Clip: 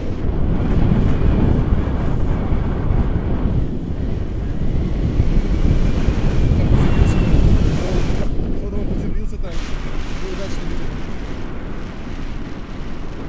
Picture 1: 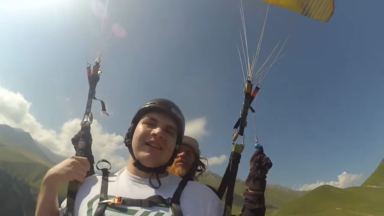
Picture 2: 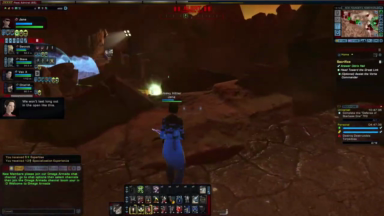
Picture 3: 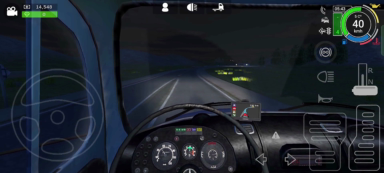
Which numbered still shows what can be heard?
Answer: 1